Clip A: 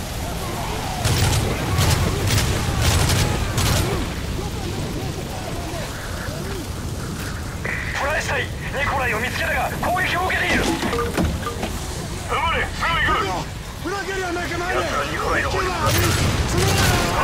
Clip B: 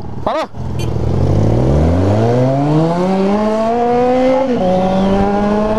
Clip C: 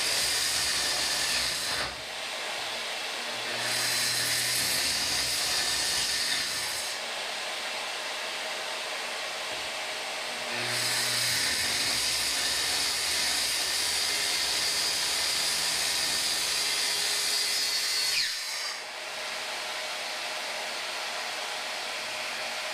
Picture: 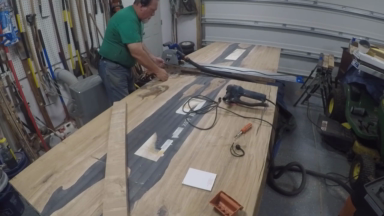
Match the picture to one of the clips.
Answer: C